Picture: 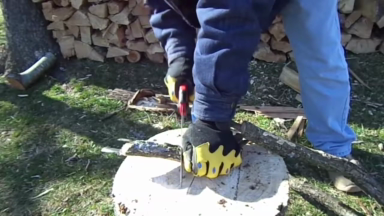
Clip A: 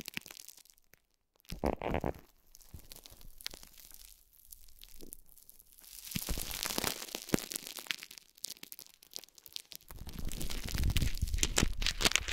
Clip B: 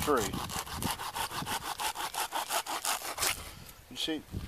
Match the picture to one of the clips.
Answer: B